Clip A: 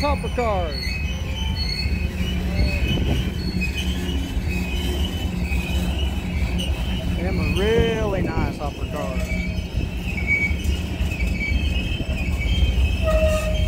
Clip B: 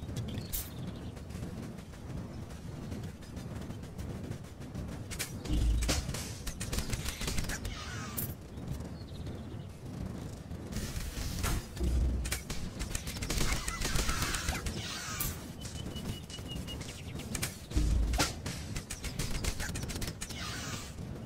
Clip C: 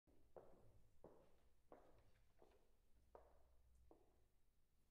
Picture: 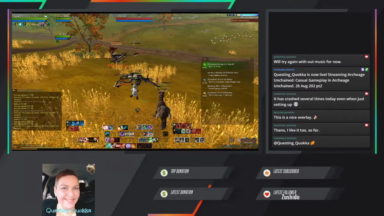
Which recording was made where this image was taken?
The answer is B